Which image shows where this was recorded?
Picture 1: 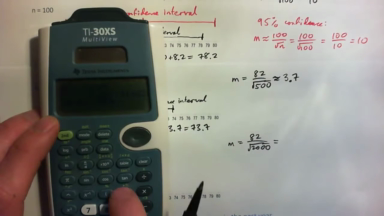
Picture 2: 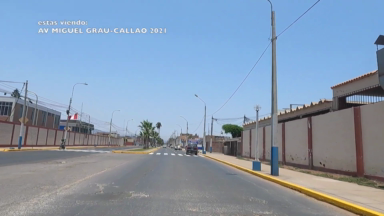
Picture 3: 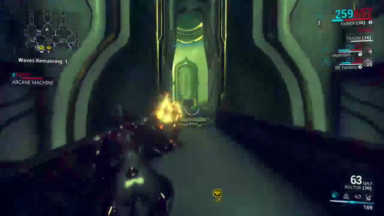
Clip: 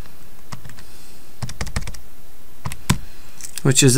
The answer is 1